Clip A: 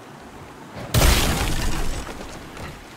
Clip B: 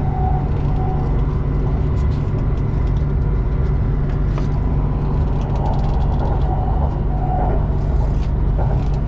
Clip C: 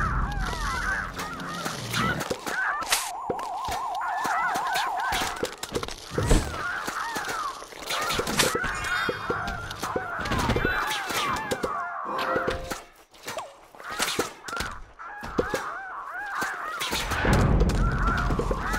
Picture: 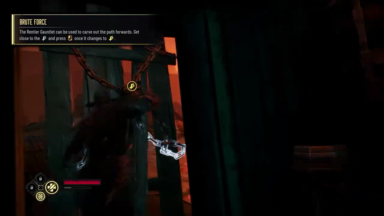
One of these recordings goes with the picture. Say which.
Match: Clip A